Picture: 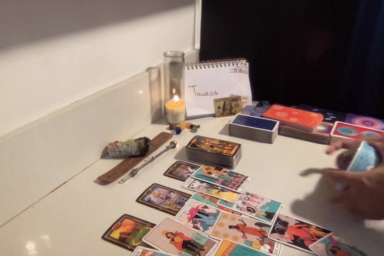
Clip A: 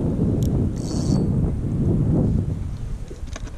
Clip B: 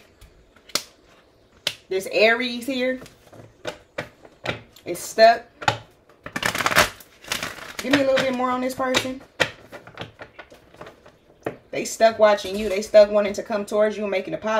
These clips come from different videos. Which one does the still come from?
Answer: B